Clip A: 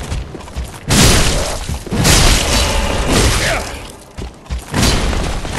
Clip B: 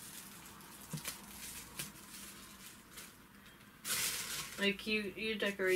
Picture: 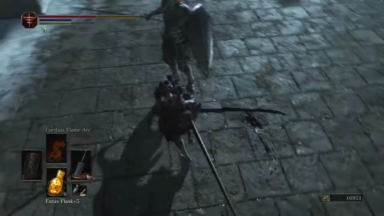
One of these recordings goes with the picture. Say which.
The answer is A